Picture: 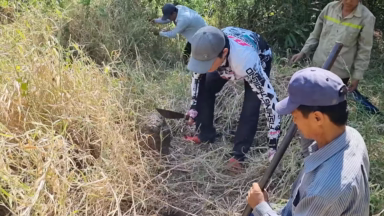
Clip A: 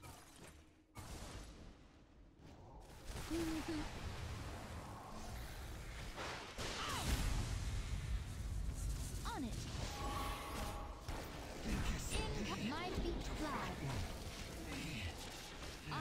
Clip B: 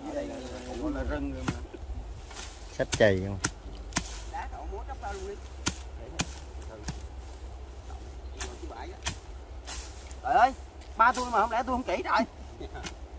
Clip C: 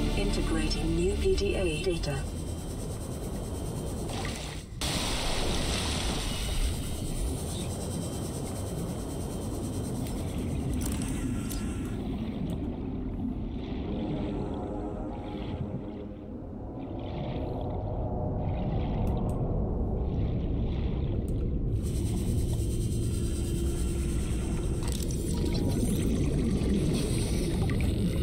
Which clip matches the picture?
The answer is B